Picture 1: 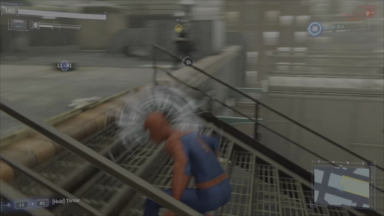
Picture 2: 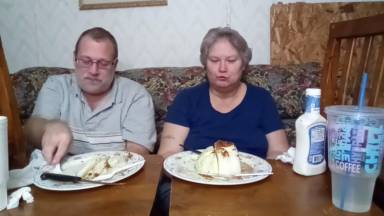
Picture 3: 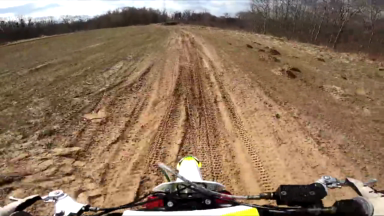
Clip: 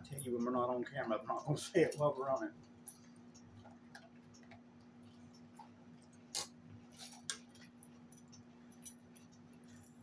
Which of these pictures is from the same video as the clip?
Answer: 2